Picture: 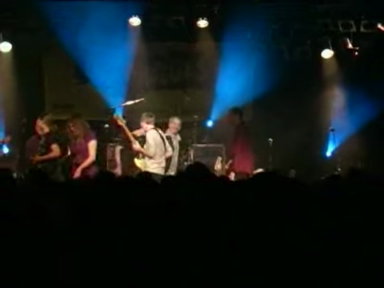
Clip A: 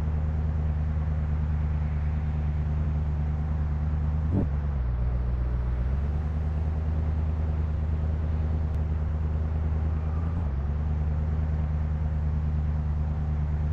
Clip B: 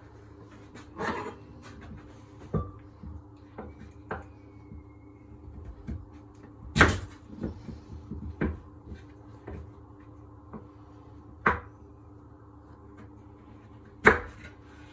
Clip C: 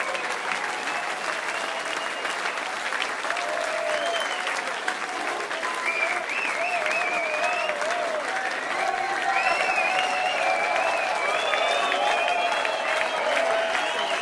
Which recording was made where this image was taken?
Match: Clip C